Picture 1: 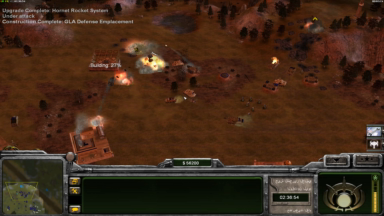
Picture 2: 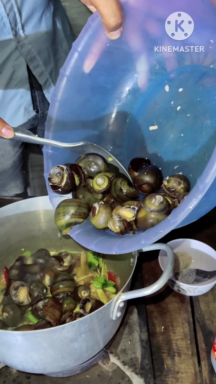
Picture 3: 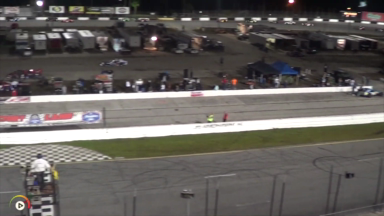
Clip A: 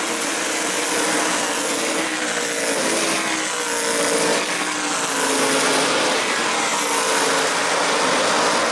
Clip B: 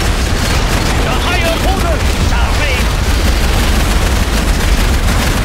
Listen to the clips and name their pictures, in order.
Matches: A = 3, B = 1